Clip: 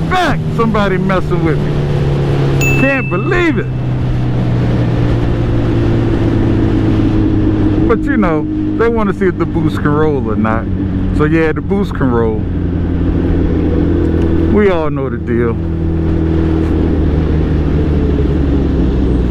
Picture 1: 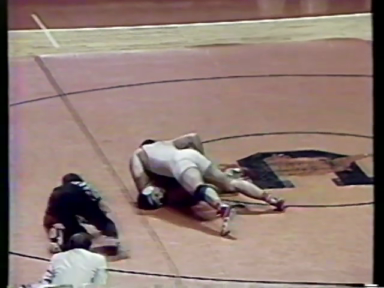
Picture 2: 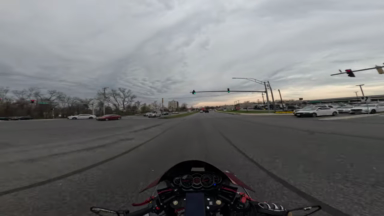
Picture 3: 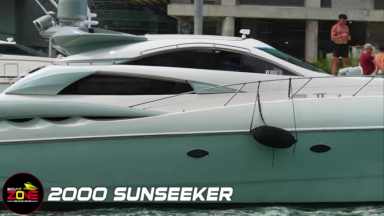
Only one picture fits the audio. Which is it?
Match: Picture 2